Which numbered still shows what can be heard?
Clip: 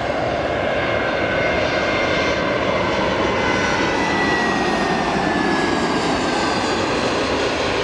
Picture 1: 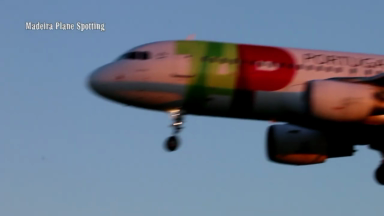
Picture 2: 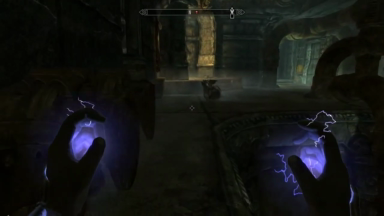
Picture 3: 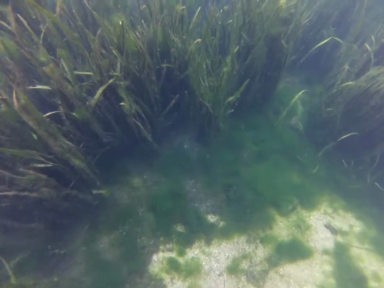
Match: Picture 1